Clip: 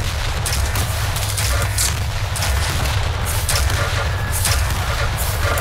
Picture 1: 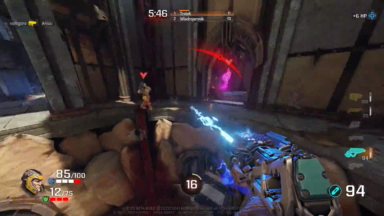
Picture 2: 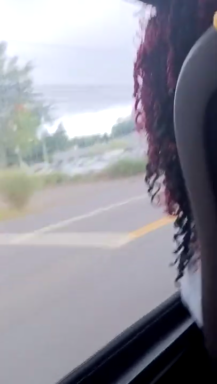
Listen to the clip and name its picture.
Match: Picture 1